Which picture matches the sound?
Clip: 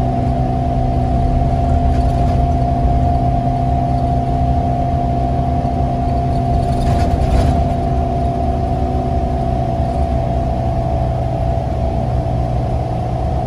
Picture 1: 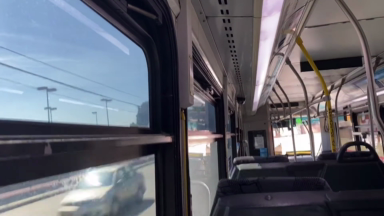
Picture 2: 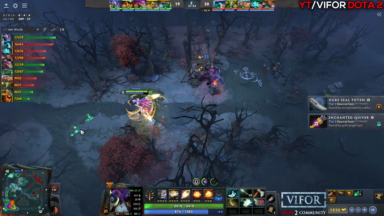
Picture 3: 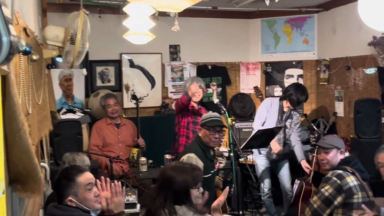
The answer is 1